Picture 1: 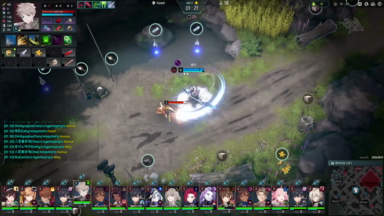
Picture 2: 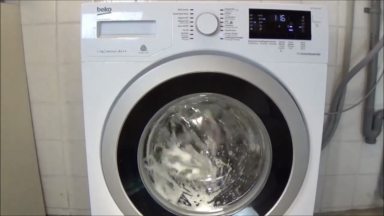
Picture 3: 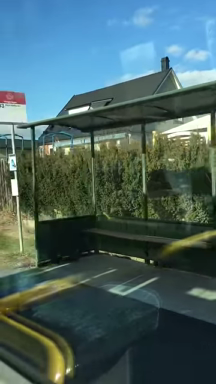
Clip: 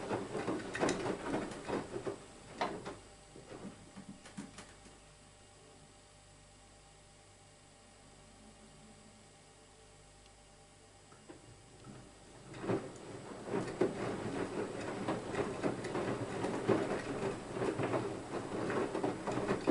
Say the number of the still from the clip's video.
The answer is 2